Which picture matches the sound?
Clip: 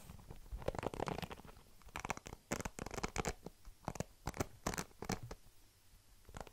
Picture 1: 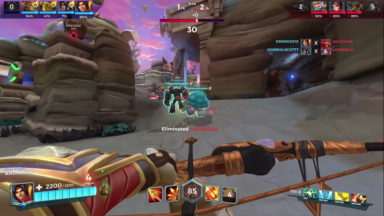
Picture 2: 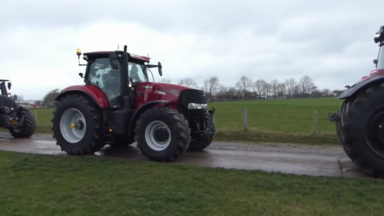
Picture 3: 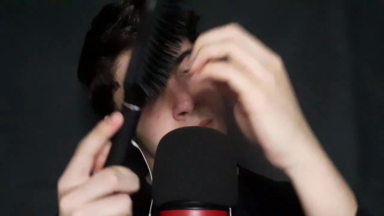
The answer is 3